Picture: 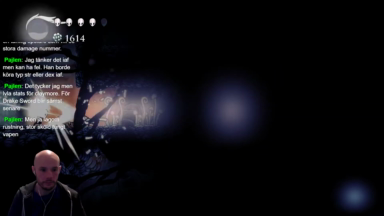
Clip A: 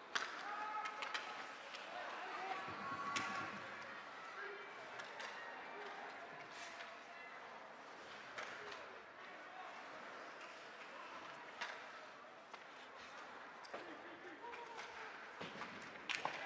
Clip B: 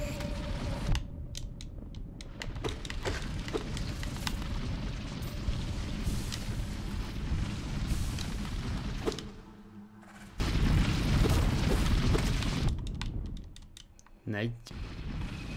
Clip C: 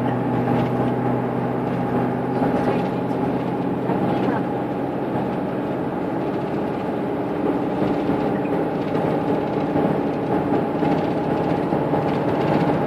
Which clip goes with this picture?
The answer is B